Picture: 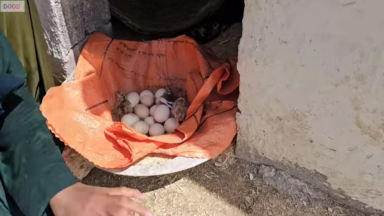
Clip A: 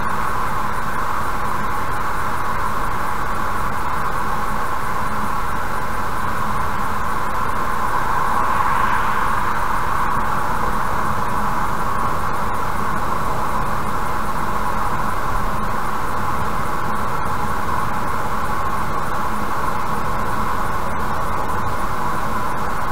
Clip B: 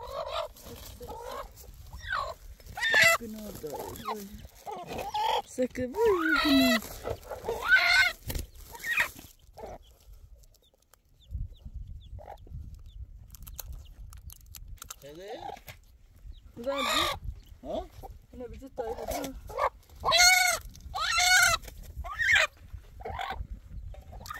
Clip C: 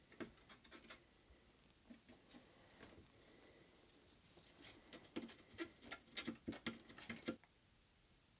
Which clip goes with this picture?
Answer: B